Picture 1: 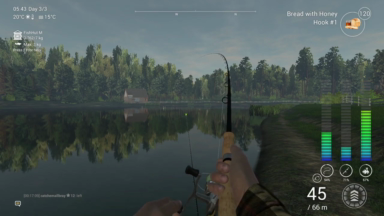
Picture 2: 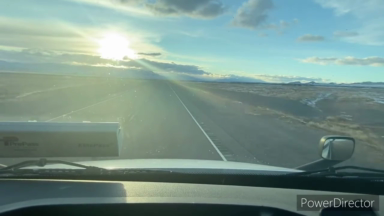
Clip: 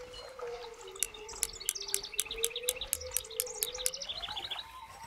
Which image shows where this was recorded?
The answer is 1